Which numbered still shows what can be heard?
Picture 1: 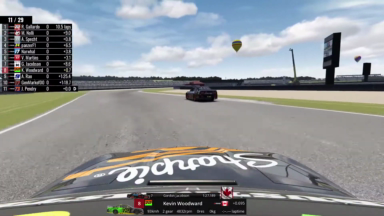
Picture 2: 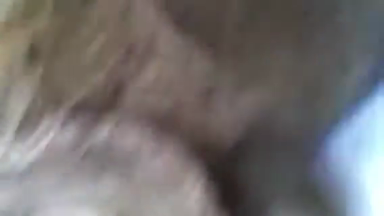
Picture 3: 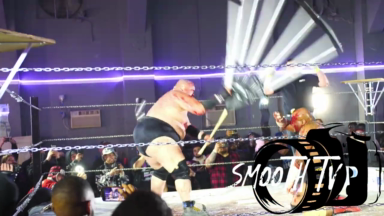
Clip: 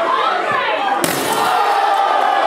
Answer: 3